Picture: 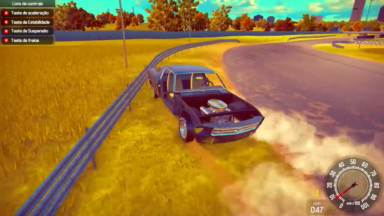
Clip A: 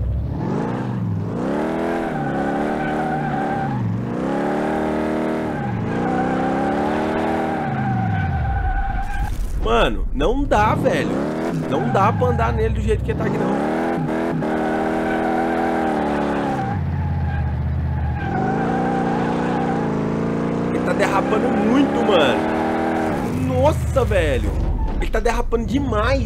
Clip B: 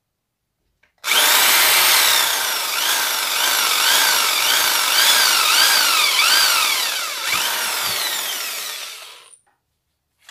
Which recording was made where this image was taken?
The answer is A